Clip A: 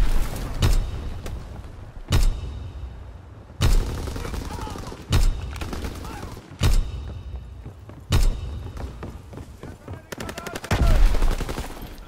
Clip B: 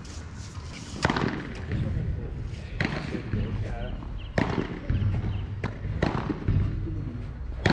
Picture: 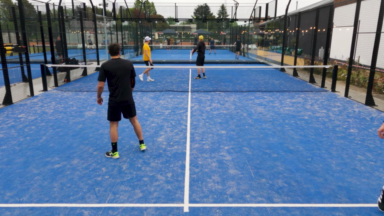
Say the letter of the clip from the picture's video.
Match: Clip B